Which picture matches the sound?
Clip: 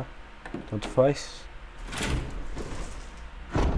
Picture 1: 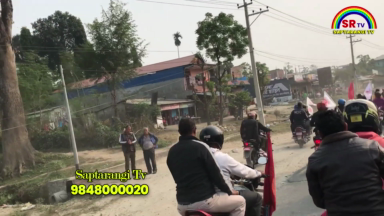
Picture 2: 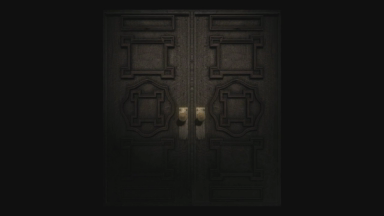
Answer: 2